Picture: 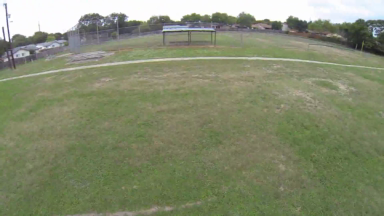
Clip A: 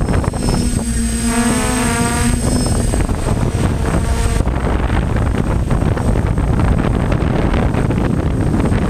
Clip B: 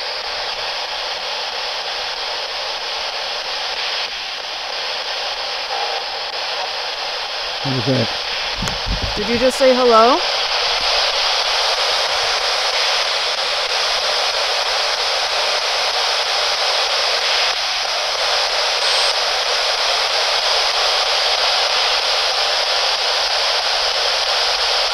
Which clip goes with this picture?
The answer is A